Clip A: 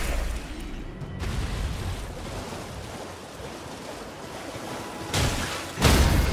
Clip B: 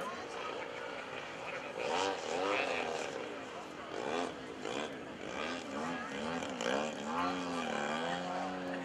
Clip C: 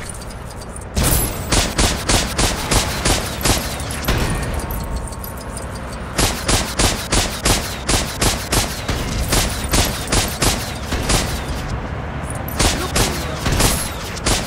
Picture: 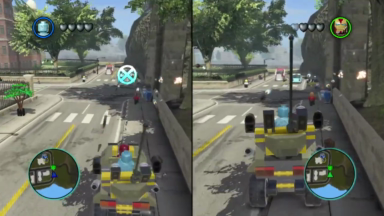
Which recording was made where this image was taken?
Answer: C